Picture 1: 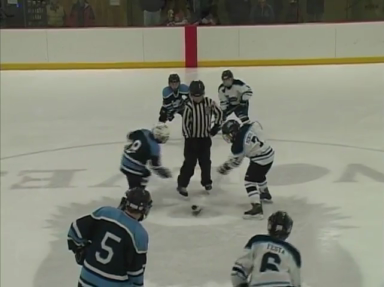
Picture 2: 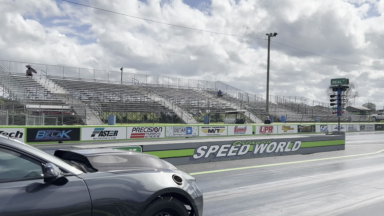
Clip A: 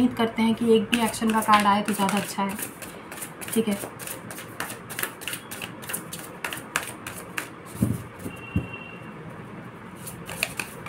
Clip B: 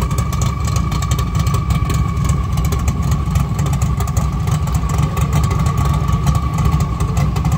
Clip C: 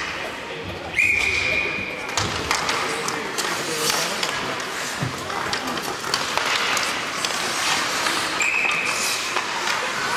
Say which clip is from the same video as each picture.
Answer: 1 C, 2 B